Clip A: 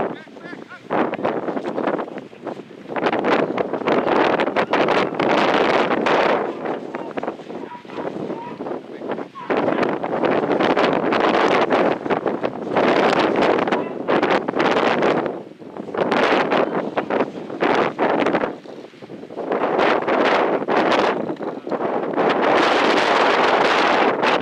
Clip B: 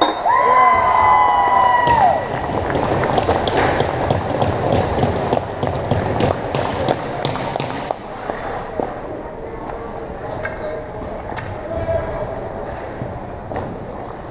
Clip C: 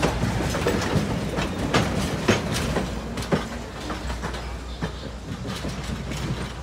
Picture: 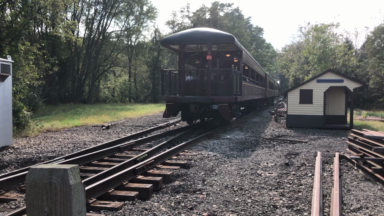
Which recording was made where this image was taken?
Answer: C